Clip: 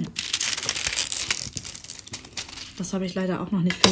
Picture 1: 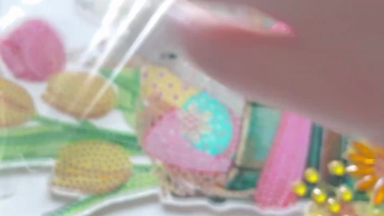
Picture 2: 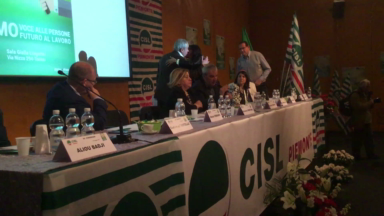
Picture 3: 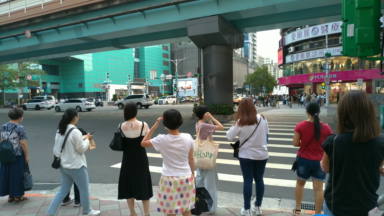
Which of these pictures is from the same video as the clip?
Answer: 1